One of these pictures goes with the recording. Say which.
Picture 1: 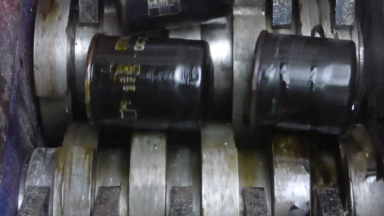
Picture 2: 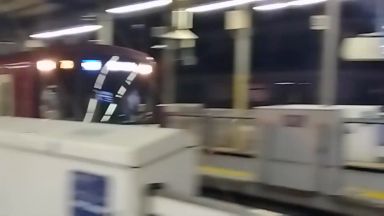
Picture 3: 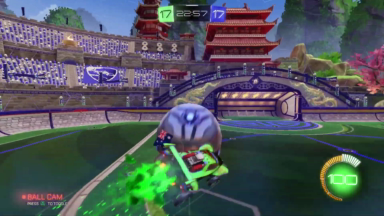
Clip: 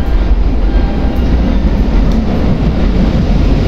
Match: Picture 2